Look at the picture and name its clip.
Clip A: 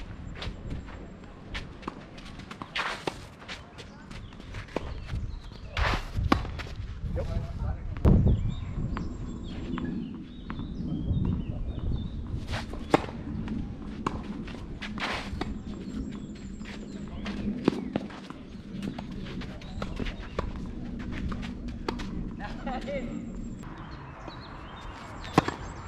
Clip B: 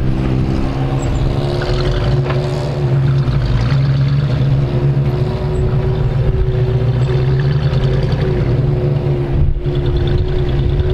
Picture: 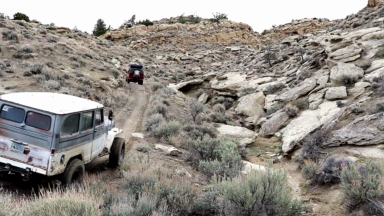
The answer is B